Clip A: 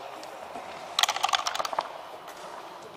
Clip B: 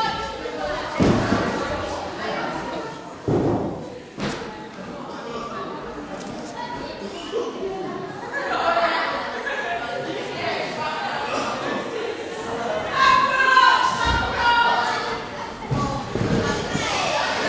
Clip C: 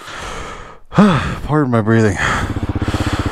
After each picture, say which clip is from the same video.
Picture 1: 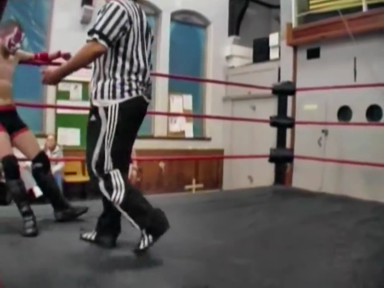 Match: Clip B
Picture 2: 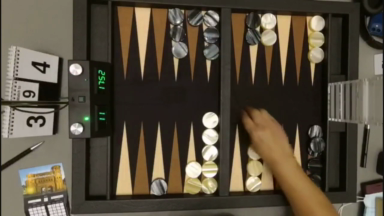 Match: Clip A